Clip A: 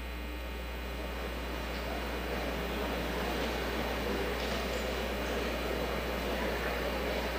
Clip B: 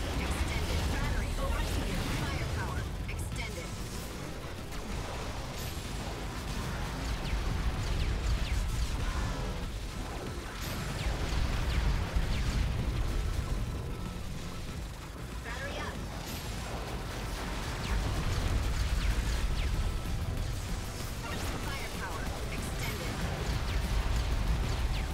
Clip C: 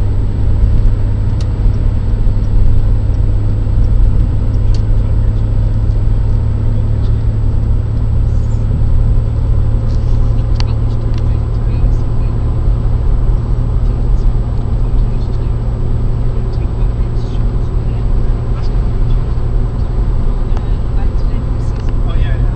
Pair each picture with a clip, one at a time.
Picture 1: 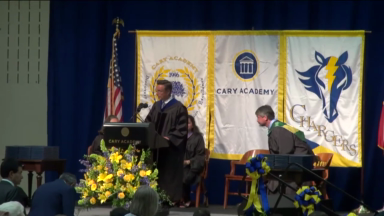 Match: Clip A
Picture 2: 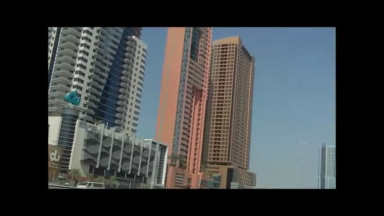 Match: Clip C